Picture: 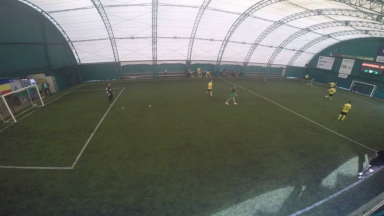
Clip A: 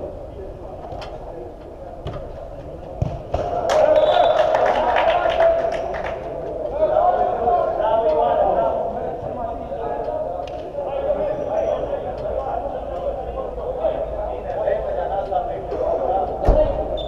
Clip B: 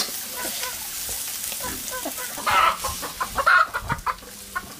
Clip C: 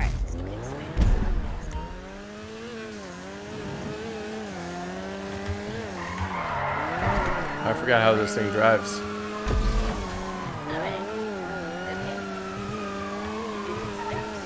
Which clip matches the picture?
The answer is A